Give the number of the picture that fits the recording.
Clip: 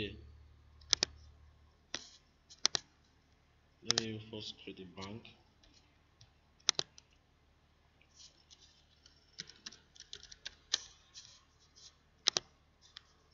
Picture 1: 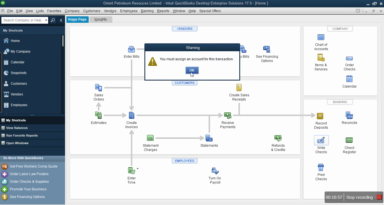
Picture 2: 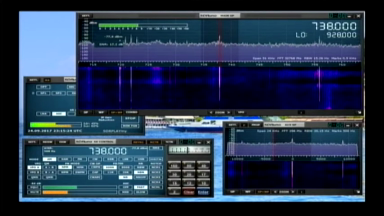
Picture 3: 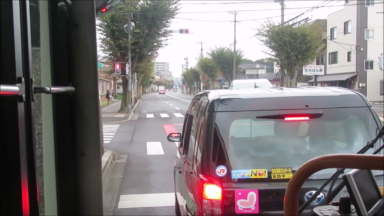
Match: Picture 1